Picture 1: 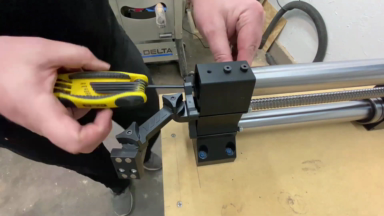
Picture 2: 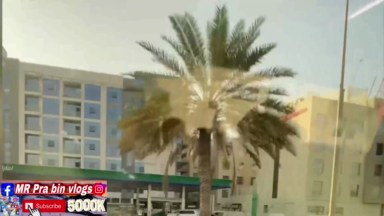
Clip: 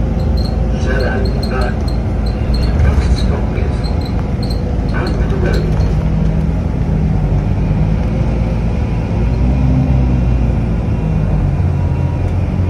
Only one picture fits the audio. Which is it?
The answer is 2